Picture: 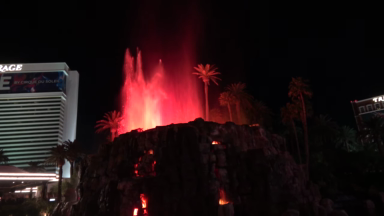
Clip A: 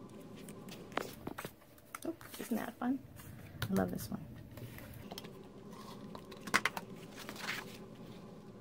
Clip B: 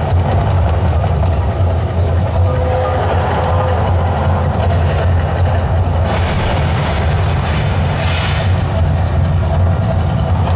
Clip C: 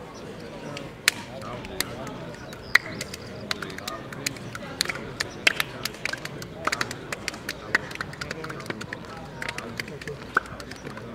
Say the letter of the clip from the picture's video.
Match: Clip B